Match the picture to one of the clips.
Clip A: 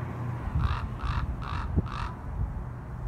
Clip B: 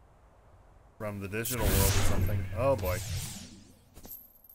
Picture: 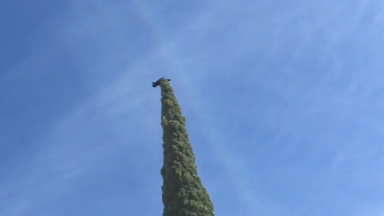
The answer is A